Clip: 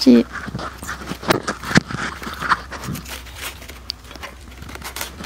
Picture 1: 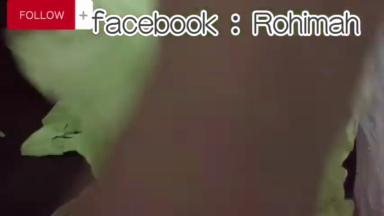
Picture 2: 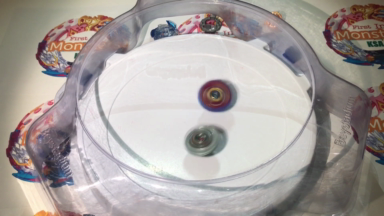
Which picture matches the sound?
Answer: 1